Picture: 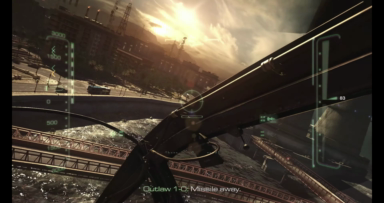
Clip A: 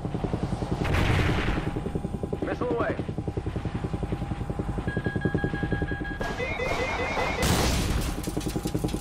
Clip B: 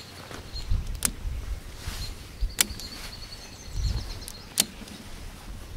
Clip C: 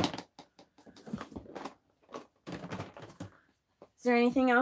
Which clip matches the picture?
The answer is A